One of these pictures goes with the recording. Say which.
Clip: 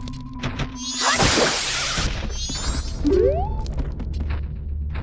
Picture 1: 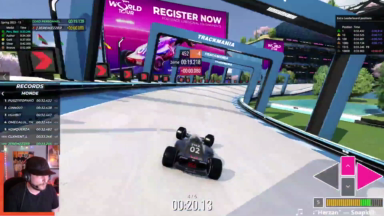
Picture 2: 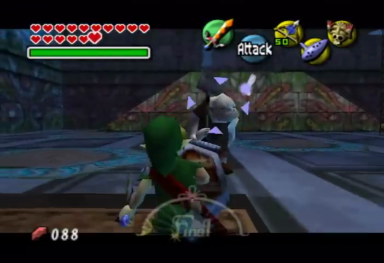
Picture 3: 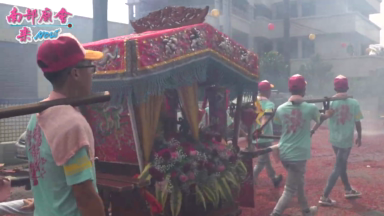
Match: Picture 2